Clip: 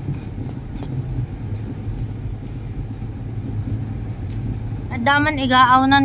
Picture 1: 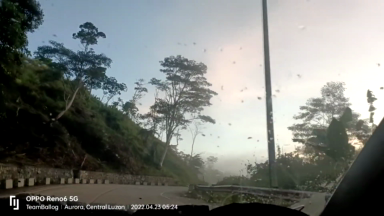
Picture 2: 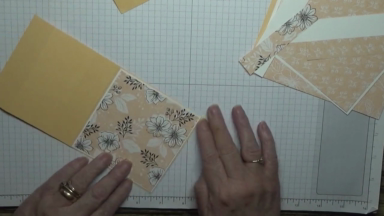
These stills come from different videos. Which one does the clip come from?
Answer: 1